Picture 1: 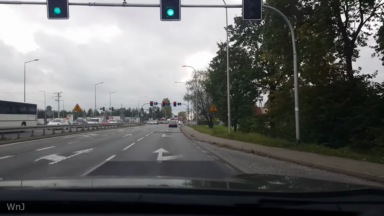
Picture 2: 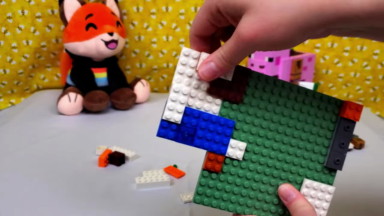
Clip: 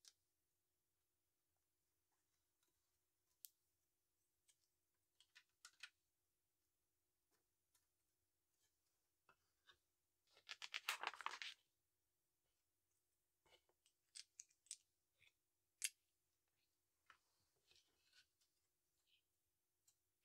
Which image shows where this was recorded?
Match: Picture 2